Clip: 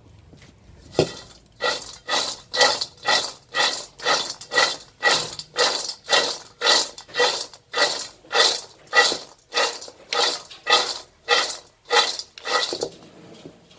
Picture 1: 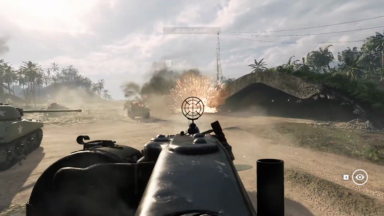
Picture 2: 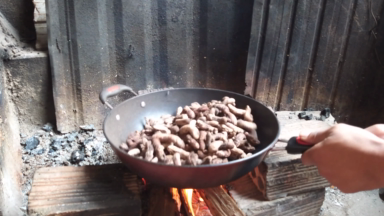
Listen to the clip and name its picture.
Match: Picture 2